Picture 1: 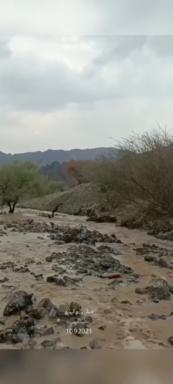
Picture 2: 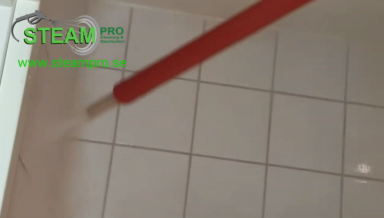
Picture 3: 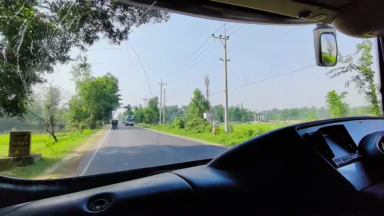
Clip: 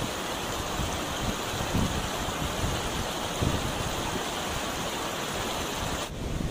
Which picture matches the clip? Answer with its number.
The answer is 1